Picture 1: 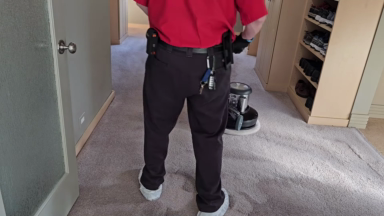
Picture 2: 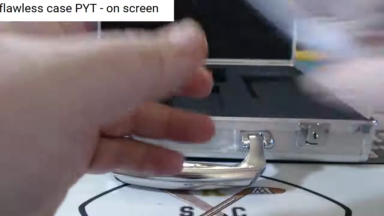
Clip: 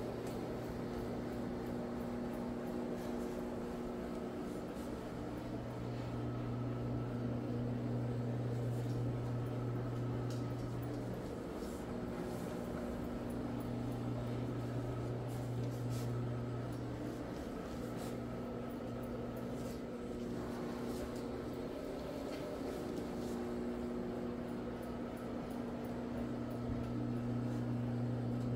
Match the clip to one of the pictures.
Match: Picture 1